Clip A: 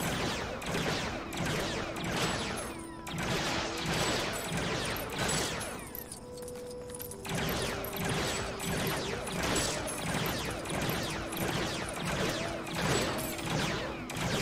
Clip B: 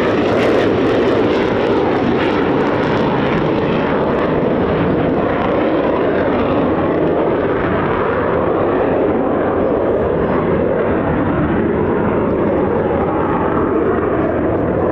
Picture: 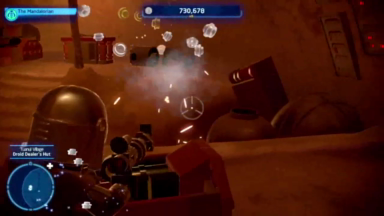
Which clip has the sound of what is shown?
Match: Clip A